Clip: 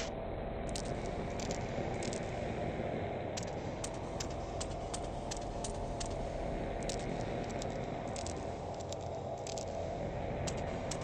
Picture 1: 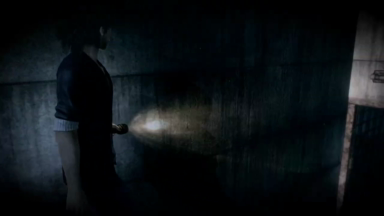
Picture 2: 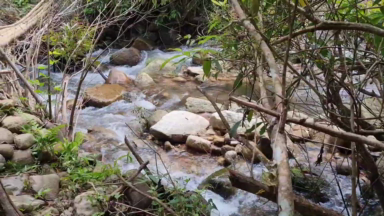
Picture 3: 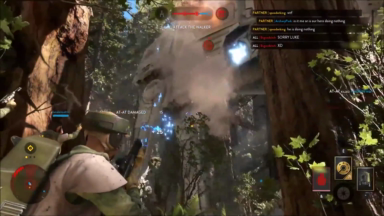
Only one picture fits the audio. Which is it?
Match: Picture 1